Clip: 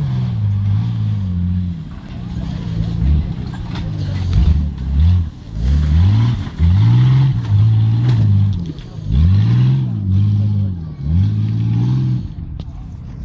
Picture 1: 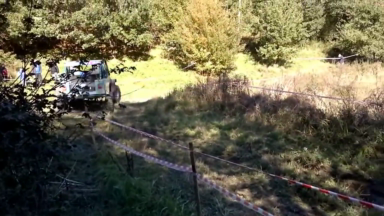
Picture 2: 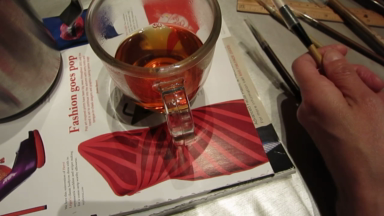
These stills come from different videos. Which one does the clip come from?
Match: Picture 1